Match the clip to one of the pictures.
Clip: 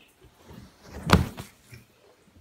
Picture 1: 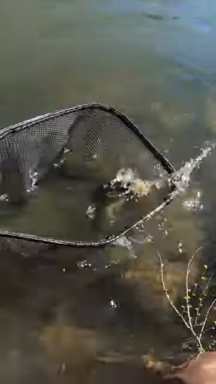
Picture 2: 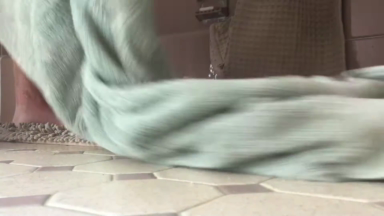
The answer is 2